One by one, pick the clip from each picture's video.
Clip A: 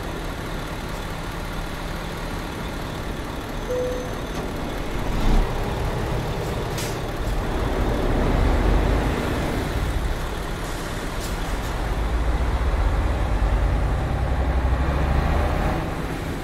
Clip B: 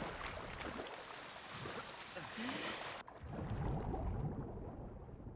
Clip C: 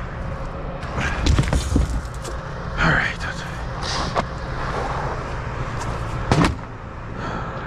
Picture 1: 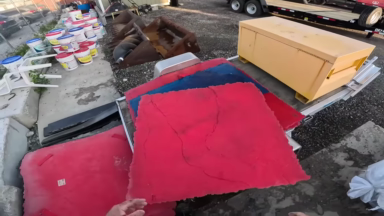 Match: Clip C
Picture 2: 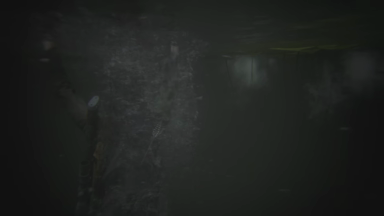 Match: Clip B